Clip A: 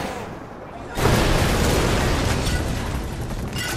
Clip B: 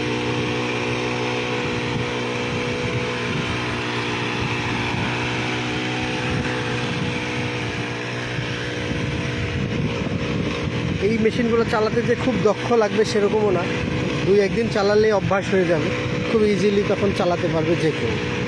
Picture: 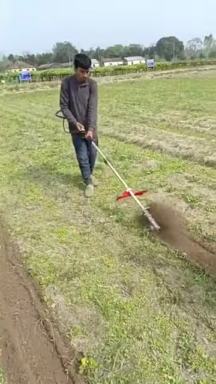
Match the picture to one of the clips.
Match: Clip B